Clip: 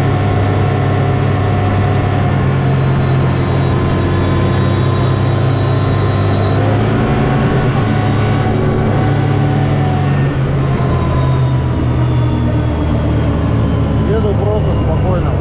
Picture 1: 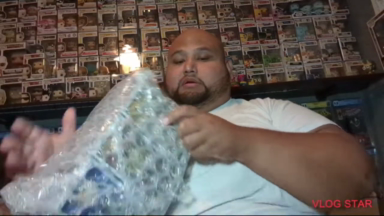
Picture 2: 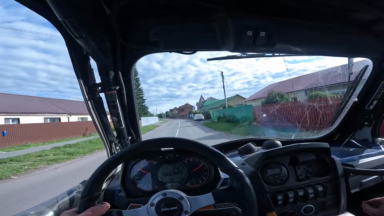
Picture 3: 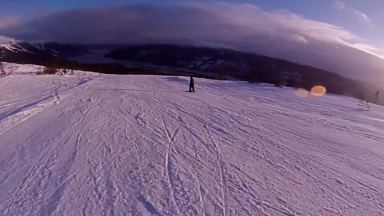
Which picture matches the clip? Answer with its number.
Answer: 2